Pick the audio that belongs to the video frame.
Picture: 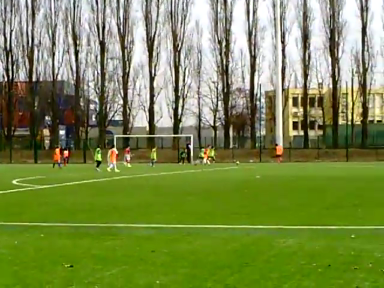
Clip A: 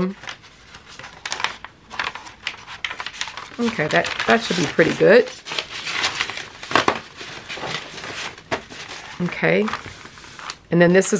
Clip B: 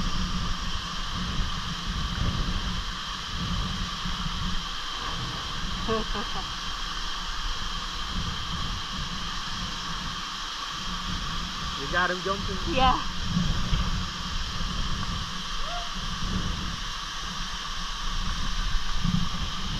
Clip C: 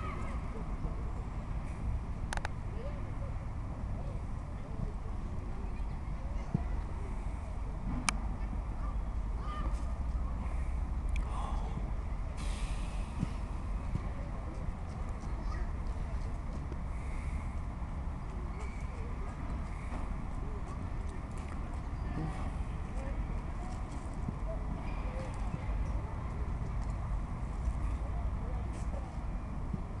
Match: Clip C